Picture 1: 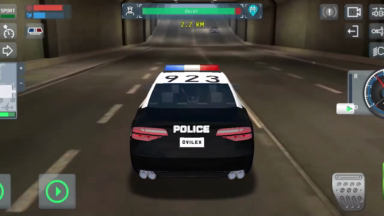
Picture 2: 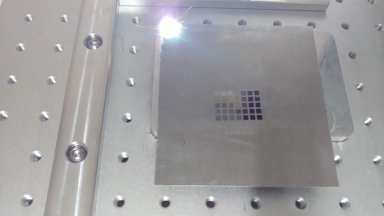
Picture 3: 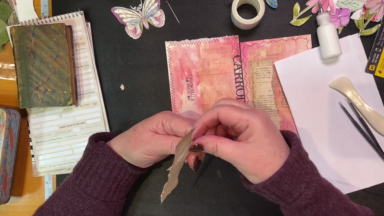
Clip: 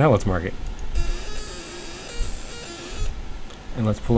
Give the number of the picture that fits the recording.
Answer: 2